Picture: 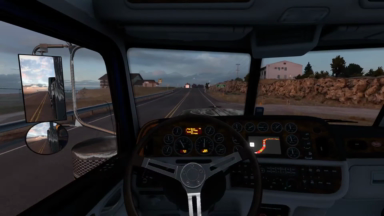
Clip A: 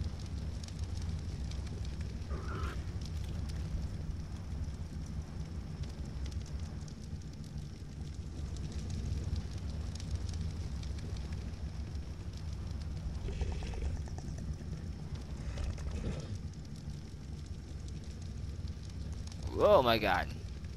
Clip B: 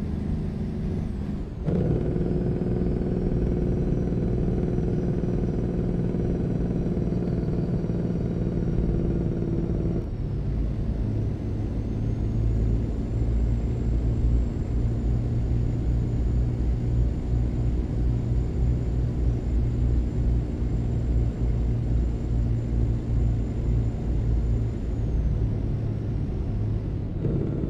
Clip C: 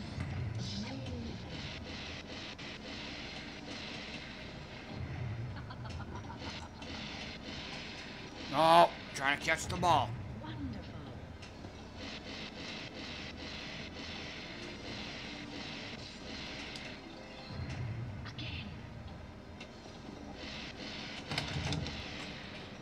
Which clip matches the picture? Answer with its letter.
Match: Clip B